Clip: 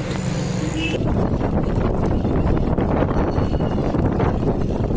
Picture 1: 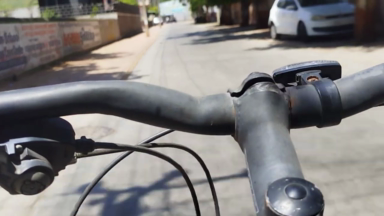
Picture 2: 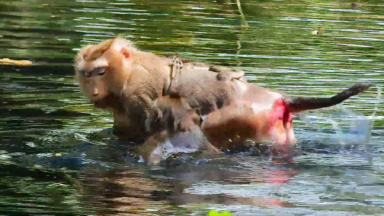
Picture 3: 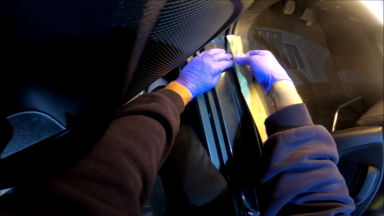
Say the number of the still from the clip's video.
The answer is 1